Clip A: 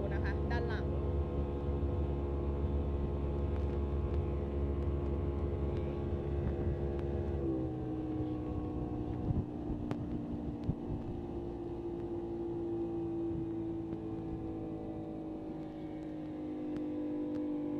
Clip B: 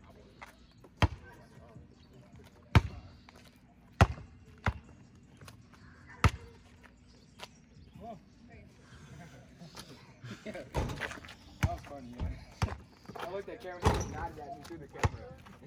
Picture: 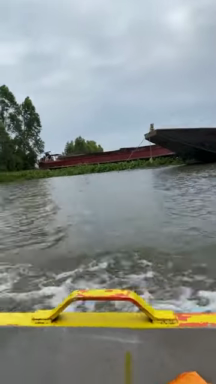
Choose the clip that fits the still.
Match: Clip A